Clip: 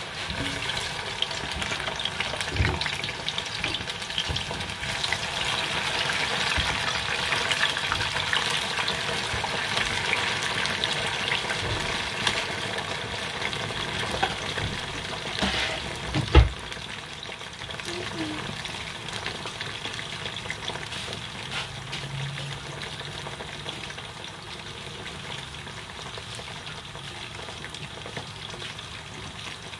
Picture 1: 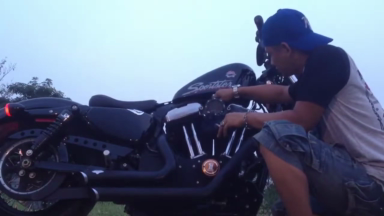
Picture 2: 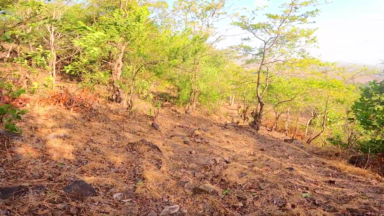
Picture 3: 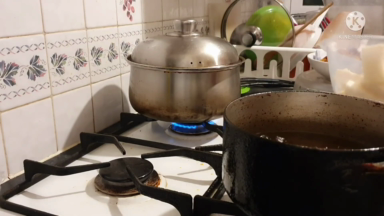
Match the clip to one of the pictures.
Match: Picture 3